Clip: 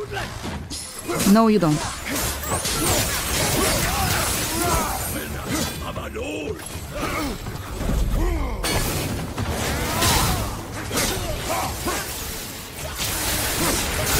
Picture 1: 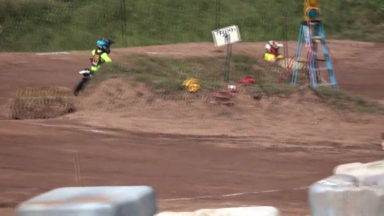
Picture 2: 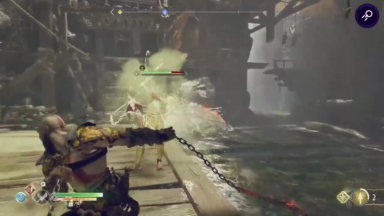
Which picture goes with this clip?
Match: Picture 2